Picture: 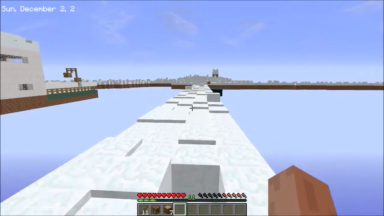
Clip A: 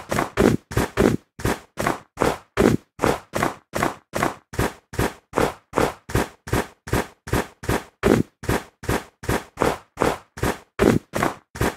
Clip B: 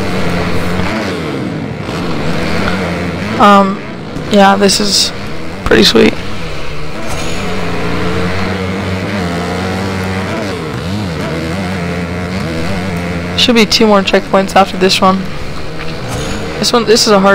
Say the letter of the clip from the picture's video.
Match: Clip A